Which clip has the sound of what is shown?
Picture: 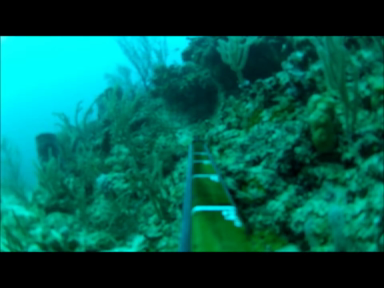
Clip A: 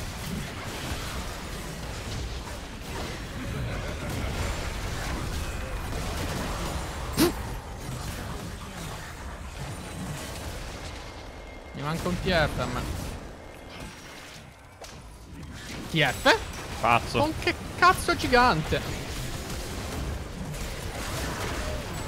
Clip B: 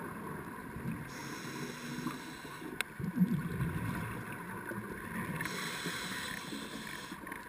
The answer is B